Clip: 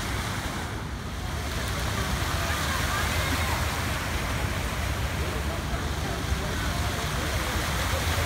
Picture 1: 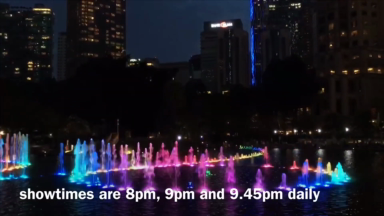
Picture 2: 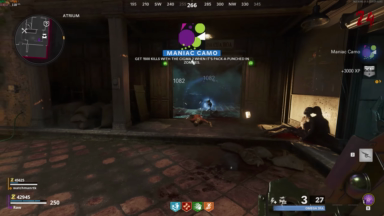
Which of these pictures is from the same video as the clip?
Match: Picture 1